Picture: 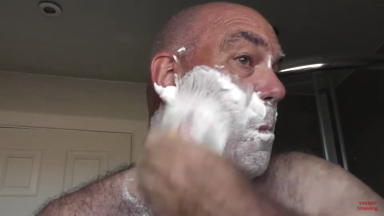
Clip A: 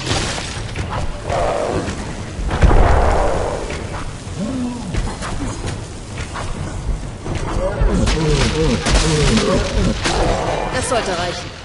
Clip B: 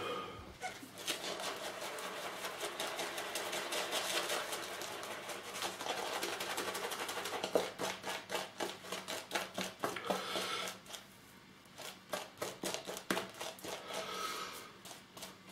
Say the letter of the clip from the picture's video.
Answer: B